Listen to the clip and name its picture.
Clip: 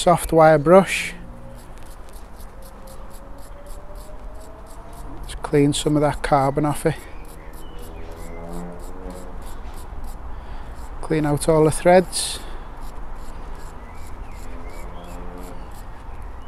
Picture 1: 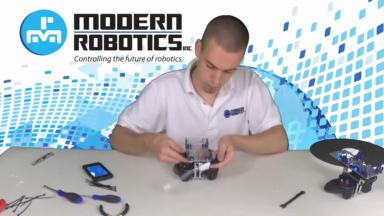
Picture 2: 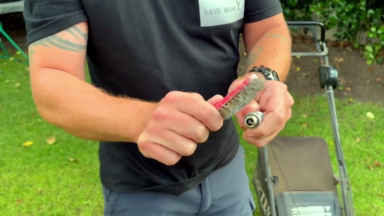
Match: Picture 2